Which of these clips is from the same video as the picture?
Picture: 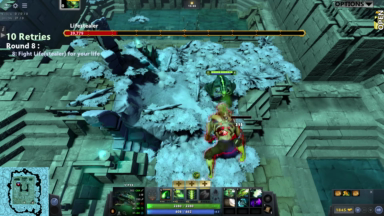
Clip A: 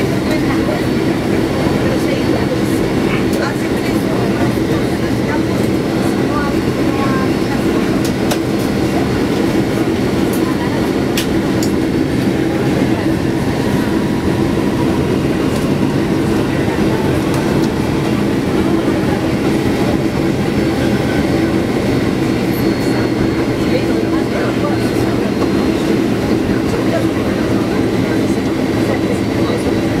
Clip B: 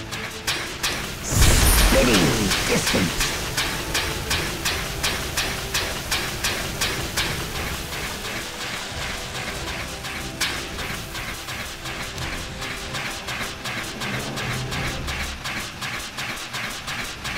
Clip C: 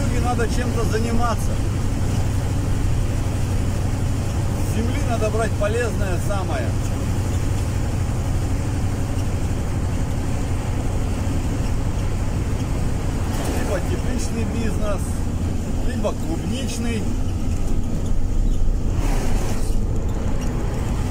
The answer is B